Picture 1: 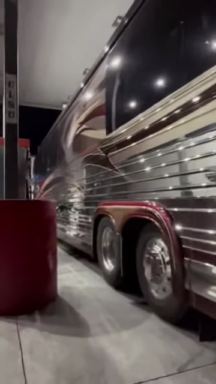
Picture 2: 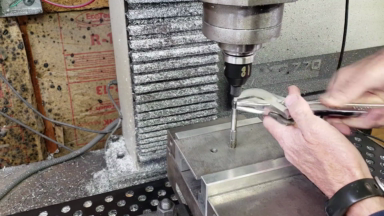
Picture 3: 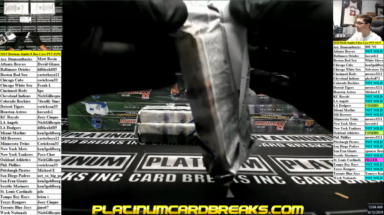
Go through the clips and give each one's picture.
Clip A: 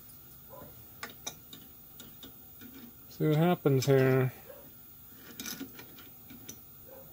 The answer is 2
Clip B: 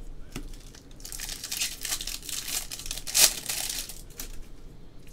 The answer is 3